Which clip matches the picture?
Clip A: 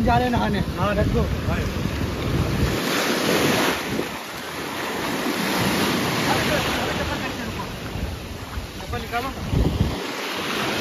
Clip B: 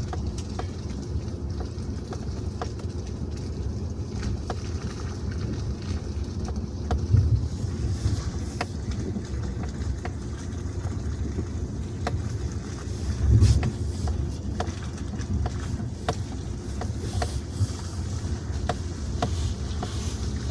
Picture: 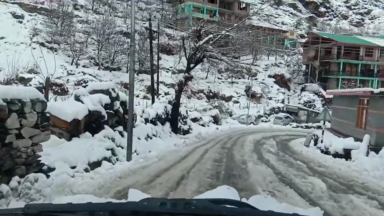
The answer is B